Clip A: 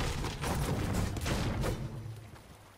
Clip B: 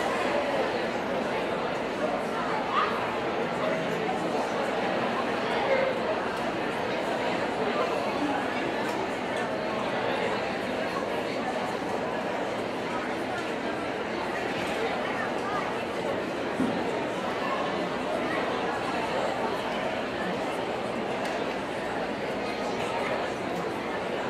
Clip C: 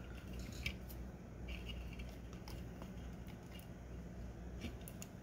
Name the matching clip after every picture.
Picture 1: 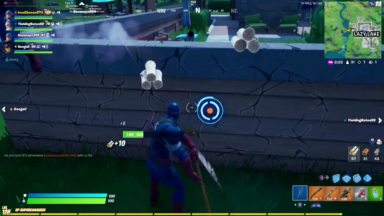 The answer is A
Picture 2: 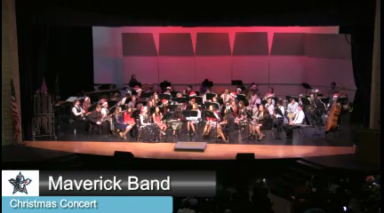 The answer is B